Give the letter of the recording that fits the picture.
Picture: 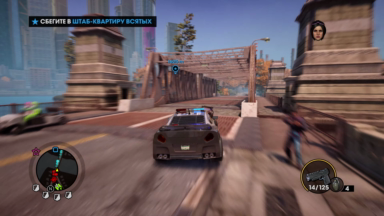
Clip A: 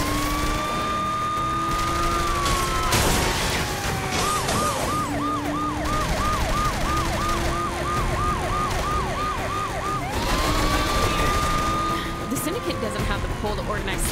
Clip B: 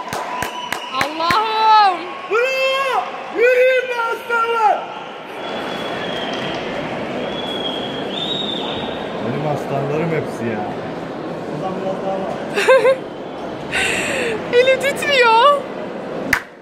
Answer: A